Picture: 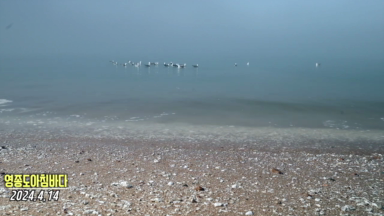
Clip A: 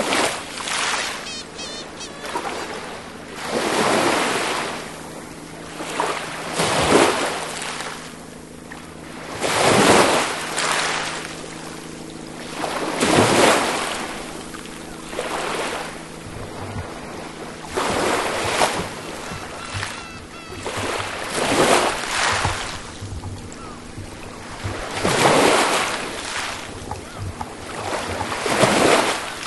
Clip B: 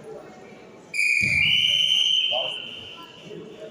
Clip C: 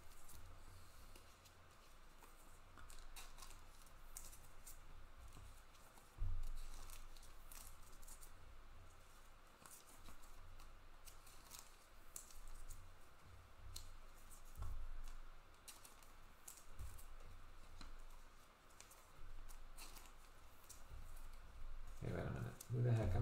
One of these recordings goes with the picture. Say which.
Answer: A